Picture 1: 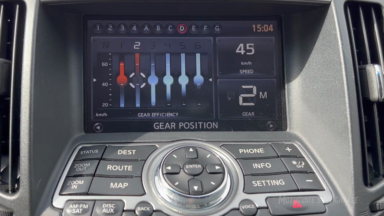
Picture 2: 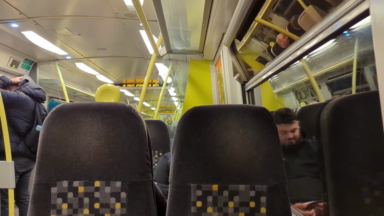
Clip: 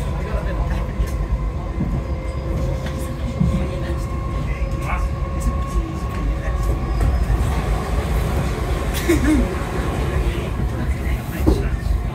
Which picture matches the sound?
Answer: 2